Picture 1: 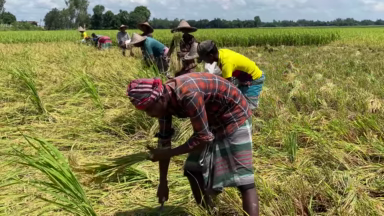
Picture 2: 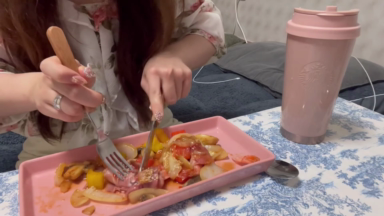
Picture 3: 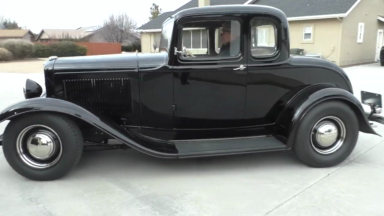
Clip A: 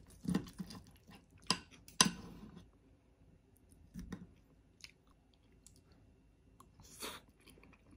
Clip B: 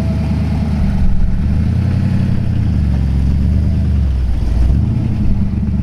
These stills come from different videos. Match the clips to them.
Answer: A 2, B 3